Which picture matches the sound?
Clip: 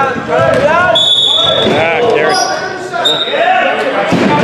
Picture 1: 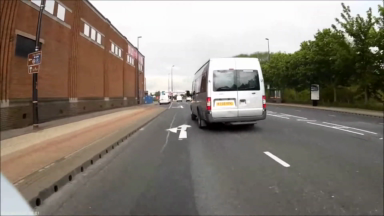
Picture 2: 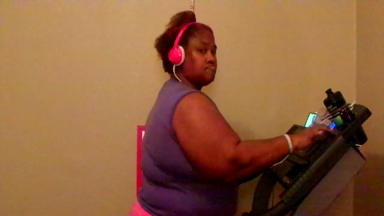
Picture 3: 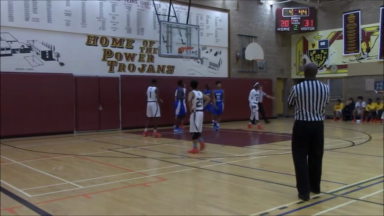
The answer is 3